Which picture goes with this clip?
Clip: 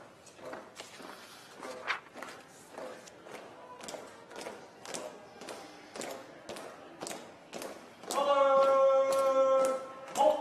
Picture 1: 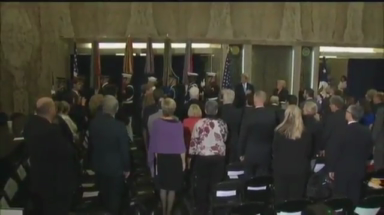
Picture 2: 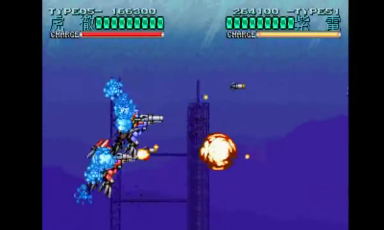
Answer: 1